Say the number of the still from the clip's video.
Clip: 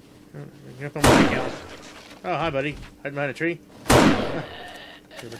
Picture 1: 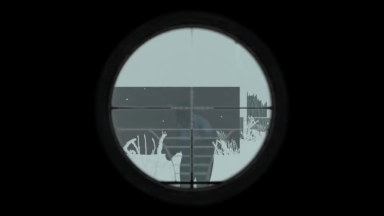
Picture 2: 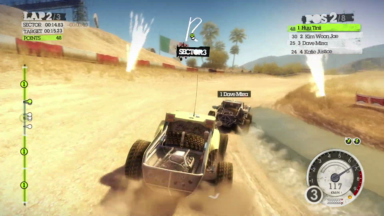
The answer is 1